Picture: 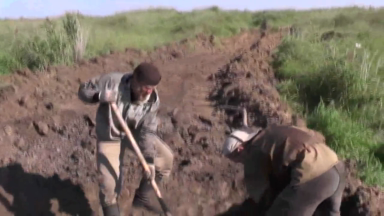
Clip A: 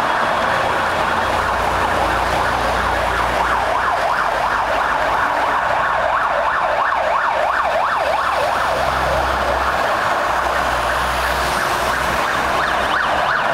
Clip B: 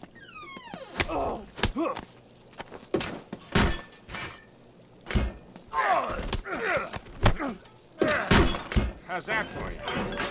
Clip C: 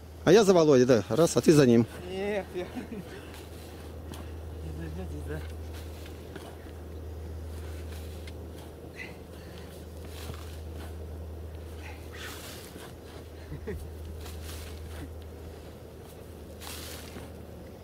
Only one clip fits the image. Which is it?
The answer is C